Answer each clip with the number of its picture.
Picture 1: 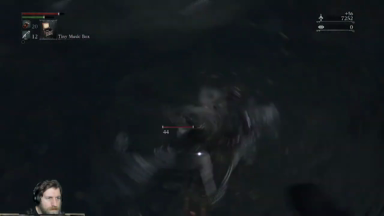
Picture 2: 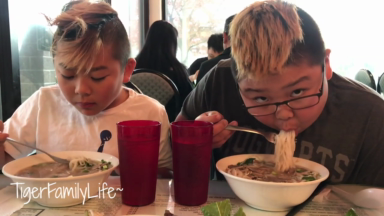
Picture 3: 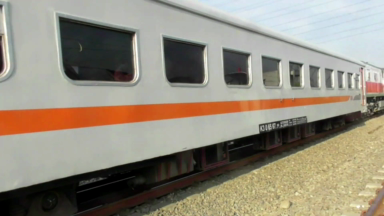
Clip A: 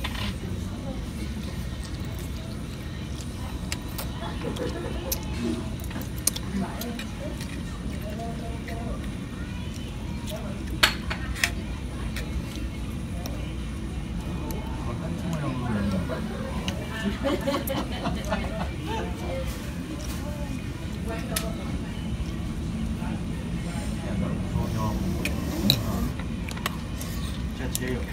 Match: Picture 2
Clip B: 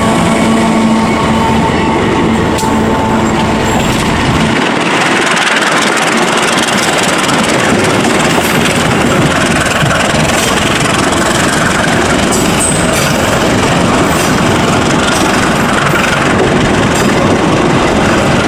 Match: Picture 3